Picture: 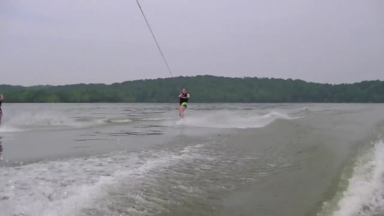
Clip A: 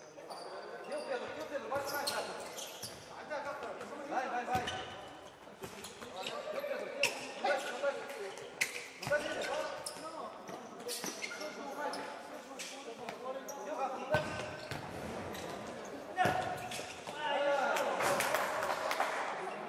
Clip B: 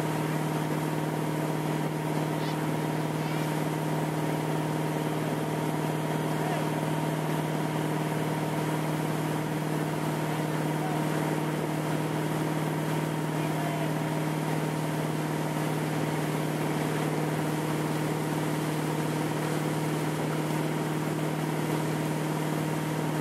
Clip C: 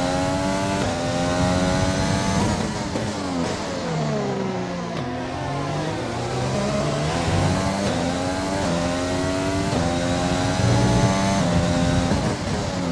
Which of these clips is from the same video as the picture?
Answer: B